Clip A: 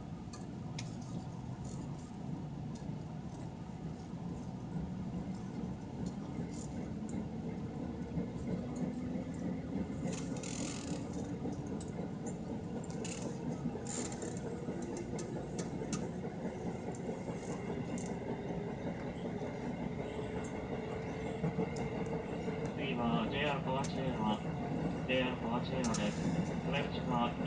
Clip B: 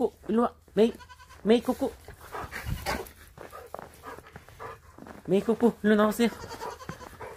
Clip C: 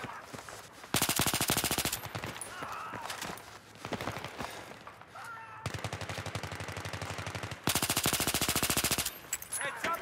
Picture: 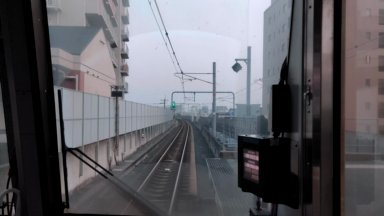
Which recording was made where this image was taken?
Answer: A